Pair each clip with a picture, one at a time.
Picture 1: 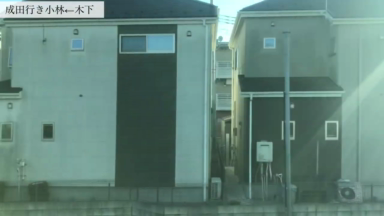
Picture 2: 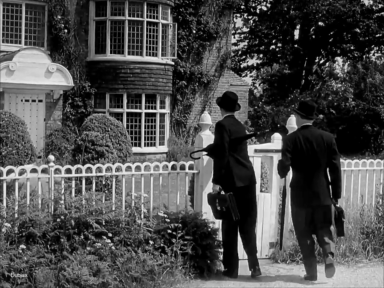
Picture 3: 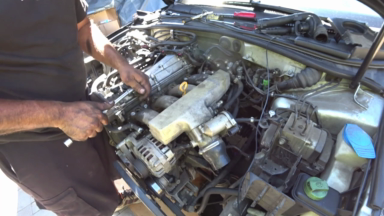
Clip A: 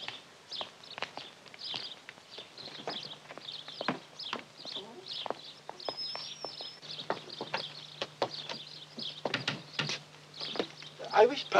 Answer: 2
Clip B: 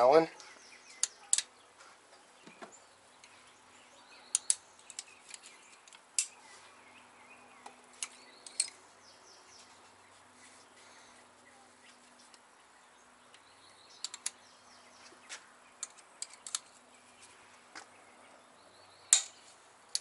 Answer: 3